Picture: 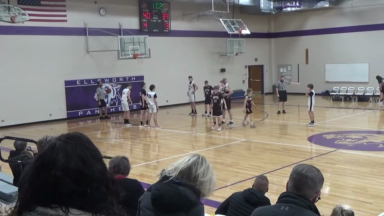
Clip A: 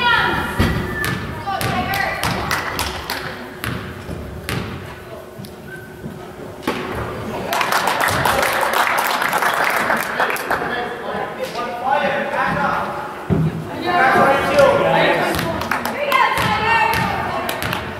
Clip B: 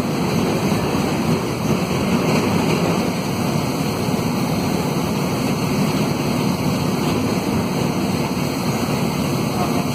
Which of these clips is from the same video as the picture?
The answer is A